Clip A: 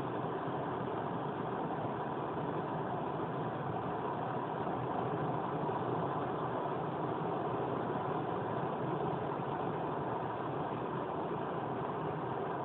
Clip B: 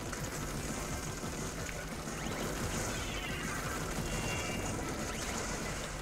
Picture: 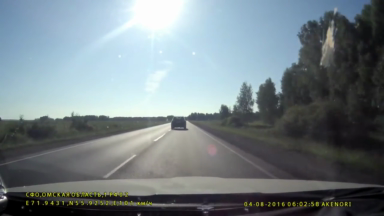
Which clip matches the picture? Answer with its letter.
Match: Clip A